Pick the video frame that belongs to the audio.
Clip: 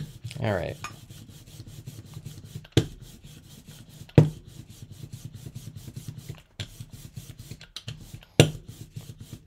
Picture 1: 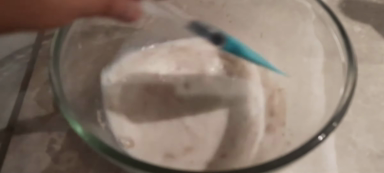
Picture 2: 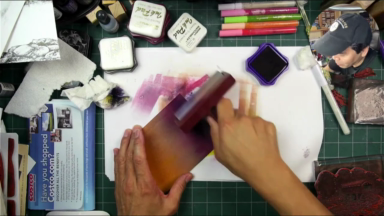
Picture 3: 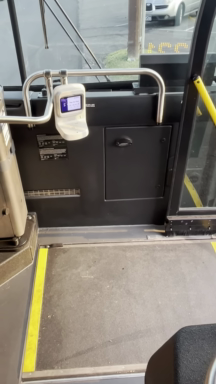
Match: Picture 2